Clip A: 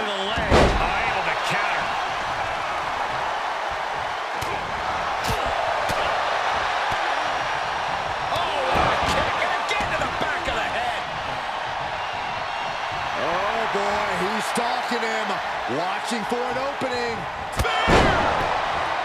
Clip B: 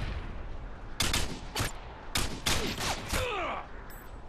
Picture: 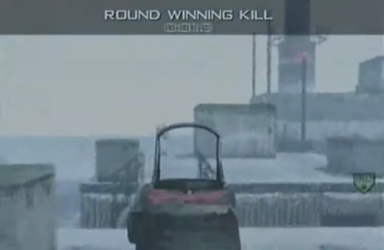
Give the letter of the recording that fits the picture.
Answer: B